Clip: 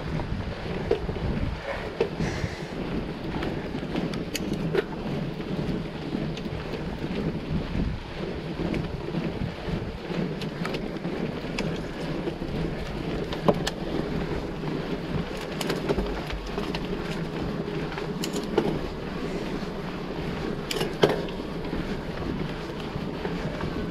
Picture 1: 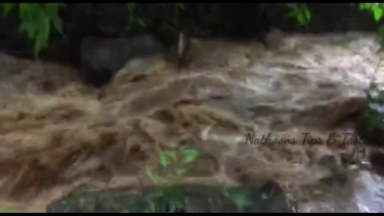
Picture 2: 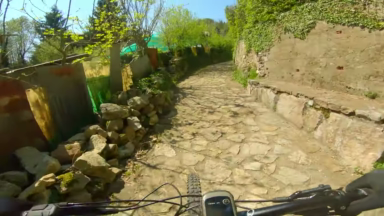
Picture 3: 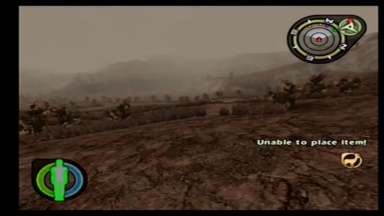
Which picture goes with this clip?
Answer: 2